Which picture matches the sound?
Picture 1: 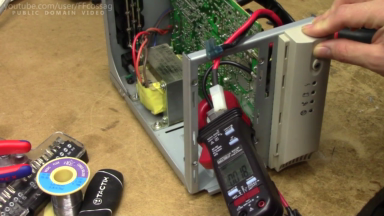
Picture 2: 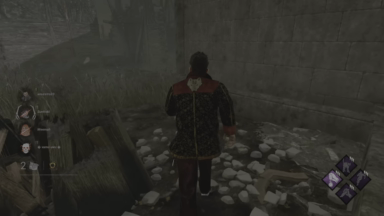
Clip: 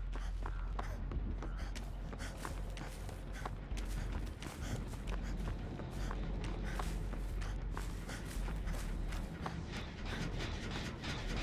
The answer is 2